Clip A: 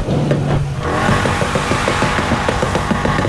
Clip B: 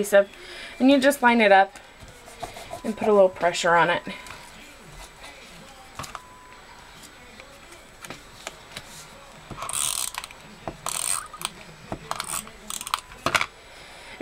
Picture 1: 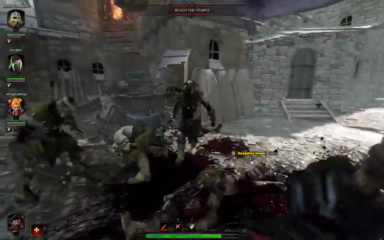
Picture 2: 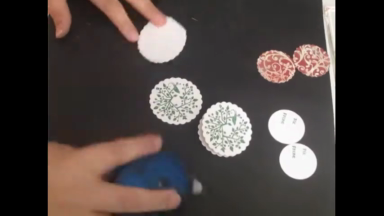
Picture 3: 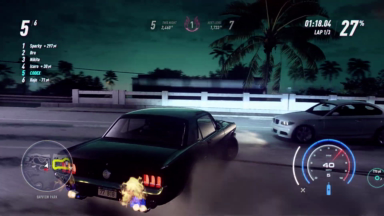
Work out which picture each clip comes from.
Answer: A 3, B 2